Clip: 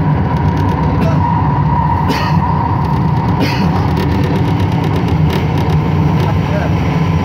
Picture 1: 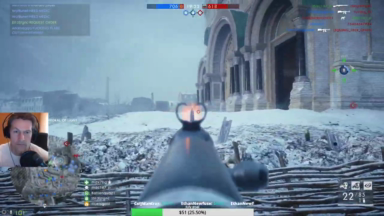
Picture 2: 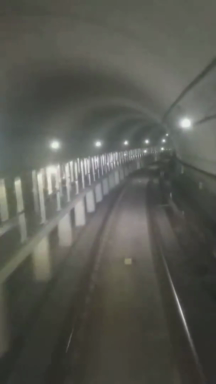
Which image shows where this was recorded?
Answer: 2